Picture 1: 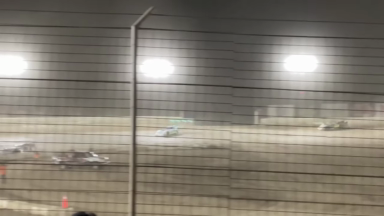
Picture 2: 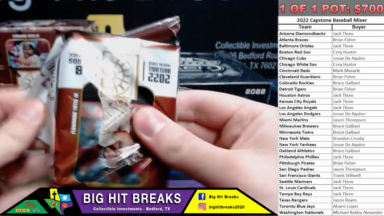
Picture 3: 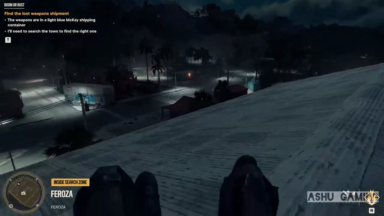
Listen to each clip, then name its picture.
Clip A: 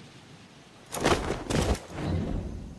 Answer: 3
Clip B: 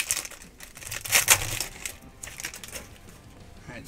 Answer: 2